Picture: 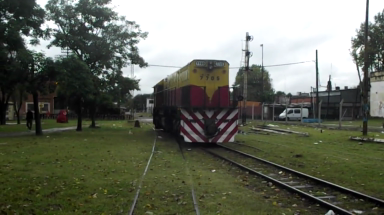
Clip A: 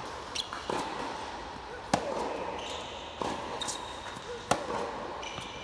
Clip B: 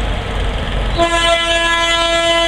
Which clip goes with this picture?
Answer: B